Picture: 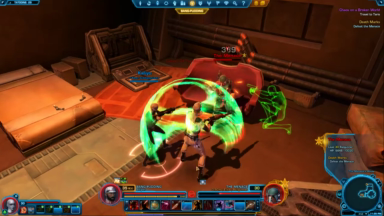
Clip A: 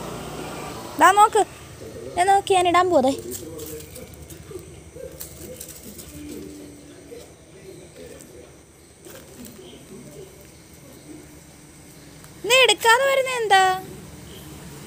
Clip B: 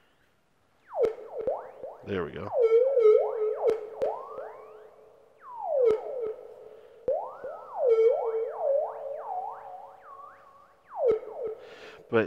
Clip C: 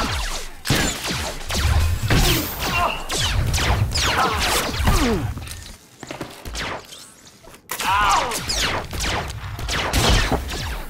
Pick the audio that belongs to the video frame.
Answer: C